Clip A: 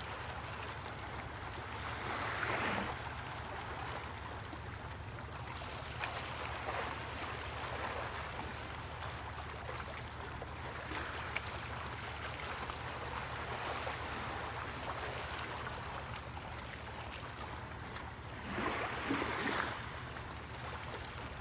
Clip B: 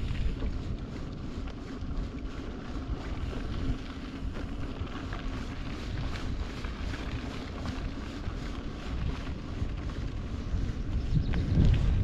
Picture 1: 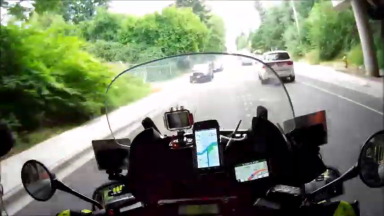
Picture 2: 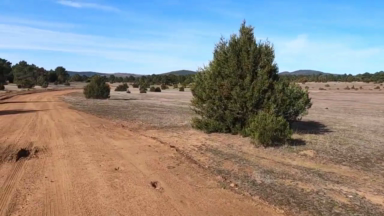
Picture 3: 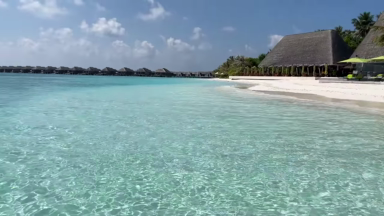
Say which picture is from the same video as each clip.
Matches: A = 3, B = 2